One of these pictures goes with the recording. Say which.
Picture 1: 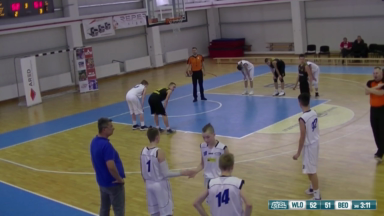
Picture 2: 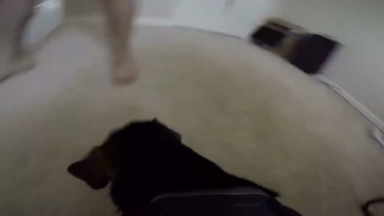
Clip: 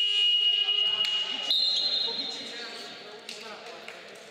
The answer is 1